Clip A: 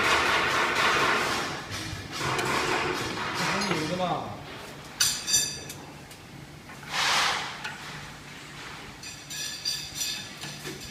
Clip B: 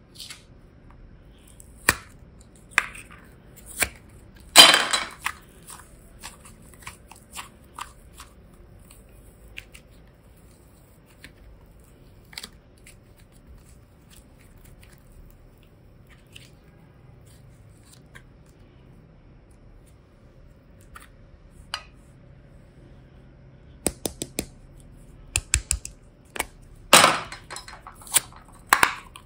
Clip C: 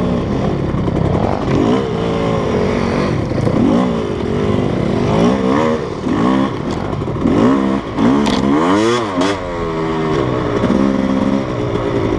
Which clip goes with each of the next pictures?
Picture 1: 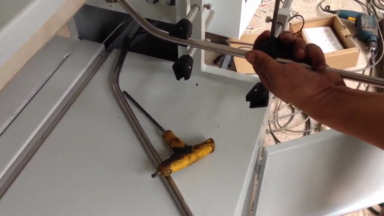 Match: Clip A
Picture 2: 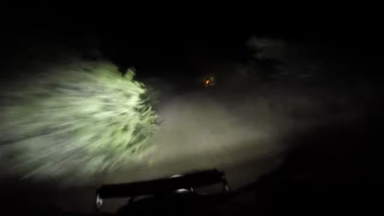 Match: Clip C